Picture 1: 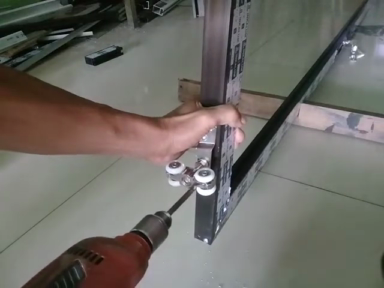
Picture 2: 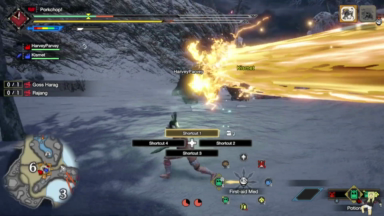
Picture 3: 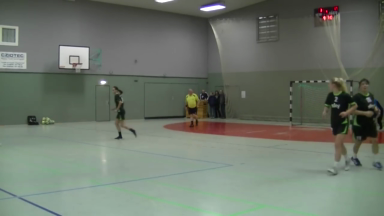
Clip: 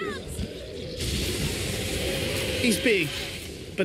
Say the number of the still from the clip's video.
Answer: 2